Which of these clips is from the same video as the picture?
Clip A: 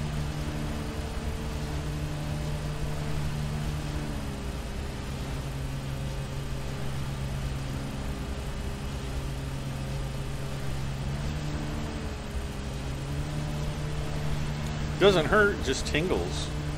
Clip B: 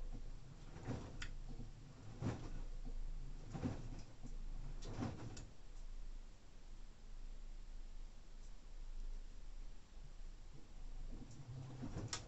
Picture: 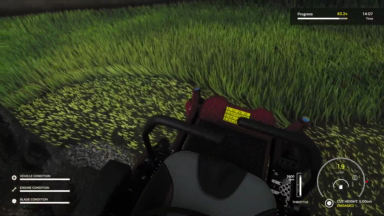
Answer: A